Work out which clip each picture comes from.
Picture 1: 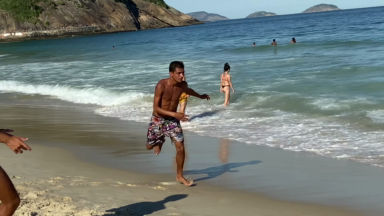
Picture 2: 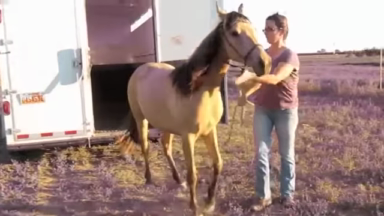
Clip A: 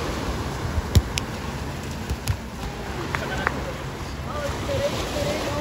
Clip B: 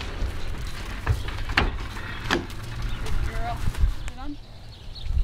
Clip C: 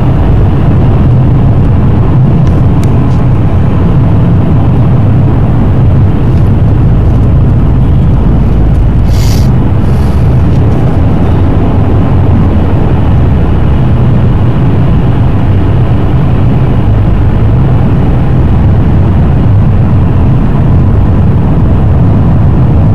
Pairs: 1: A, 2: B